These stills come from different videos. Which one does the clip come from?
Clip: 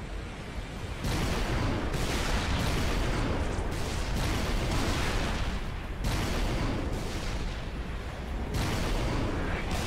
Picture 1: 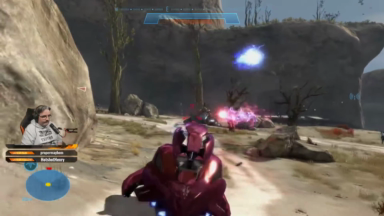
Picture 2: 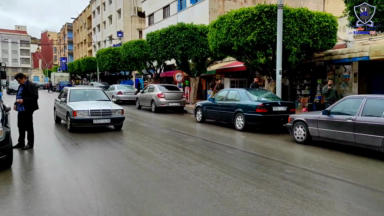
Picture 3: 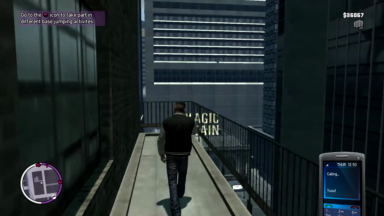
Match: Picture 1